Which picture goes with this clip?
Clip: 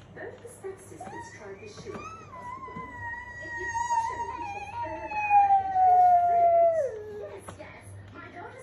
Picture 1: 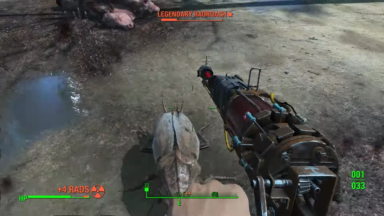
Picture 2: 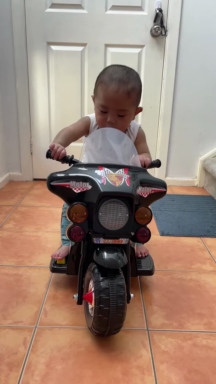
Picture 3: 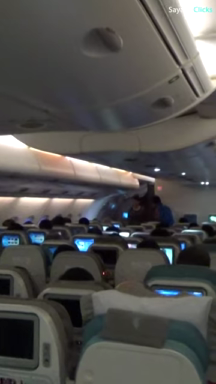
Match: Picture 2